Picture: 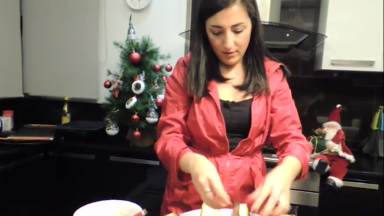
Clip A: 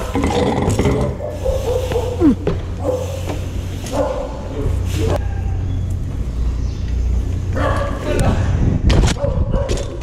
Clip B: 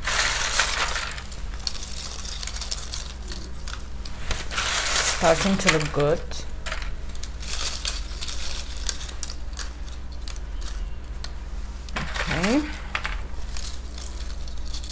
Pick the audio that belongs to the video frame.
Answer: B